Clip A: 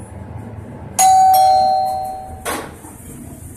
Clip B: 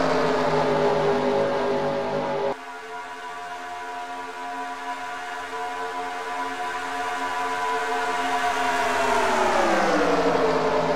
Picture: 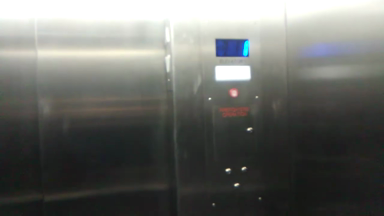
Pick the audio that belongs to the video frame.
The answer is A